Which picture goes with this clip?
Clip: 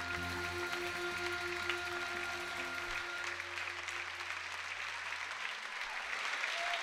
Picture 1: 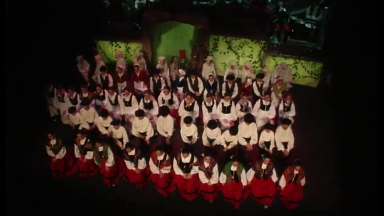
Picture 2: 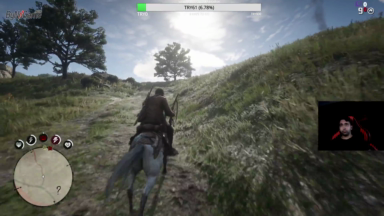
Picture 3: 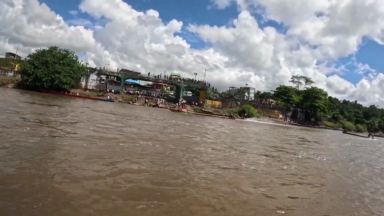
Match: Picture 1